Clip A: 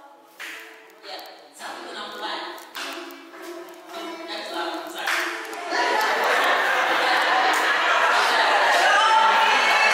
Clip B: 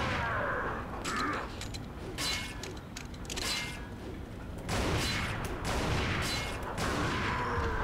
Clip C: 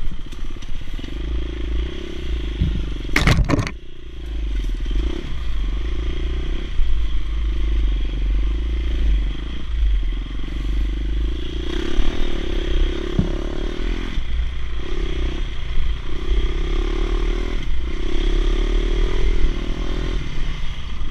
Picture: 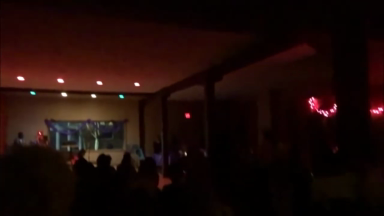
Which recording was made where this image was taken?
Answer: A